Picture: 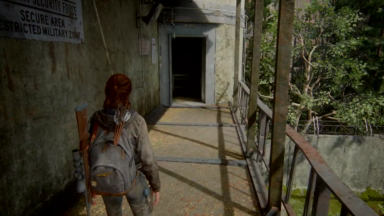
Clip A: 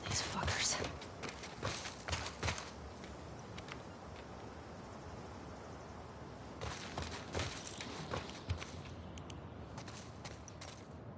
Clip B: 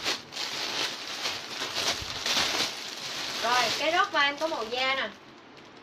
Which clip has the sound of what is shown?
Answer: A